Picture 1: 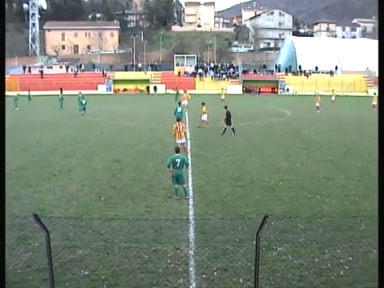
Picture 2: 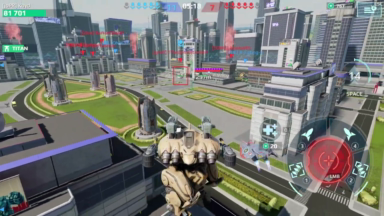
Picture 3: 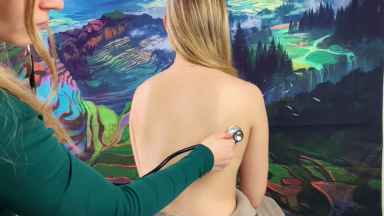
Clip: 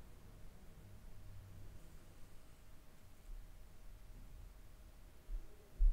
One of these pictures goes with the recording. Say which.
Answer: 3